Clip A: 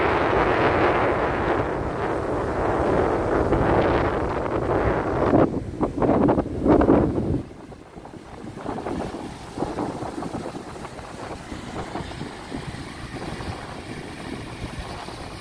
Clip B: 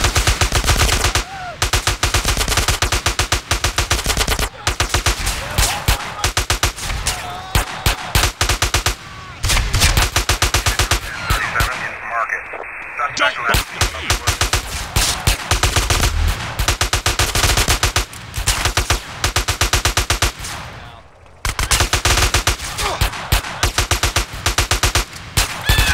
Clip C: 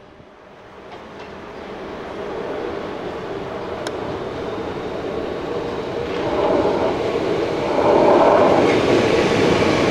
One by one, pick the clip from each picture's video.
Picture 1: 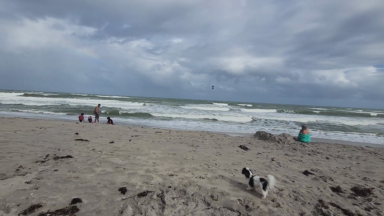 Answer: A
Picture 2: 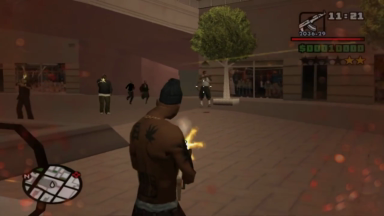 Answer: B